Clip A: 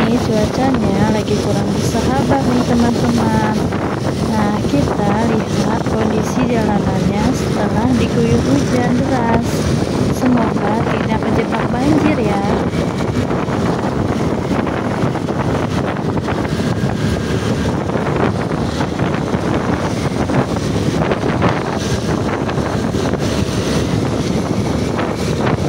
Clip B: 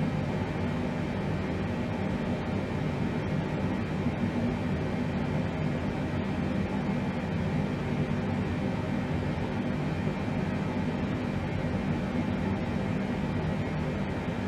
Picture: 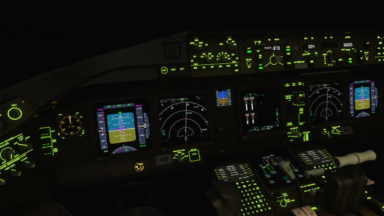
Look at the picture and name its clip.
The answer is B